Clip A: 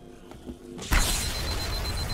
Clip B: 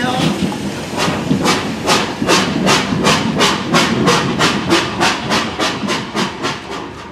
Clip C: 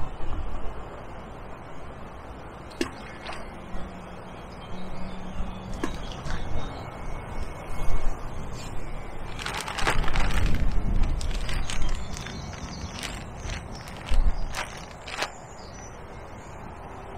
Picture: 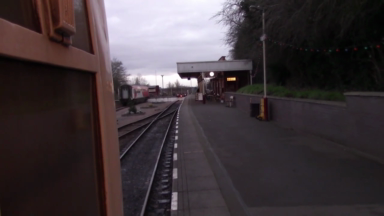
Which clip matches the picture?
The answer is B